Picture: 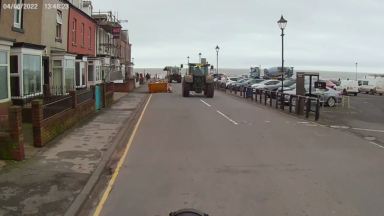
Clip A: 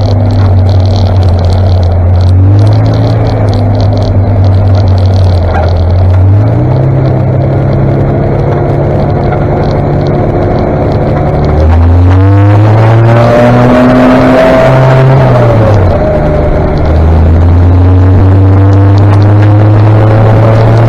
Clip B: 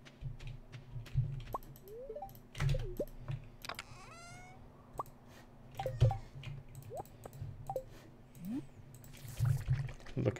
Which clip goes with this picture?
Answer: A